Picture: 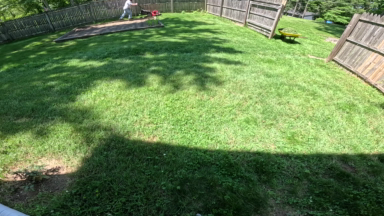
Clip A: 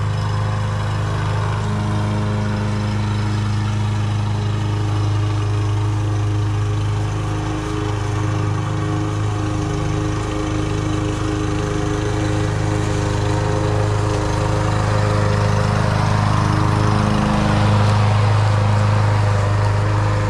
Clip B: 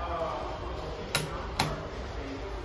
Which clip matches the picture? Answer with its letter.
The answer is A